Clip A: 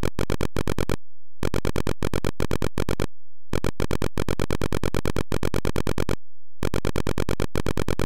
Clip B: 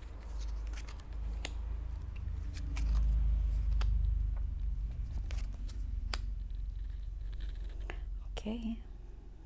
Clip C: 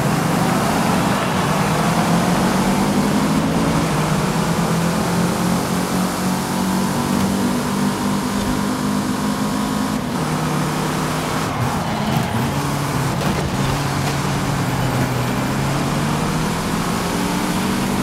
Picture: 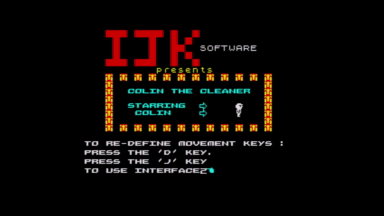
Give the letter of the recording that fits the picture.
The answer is A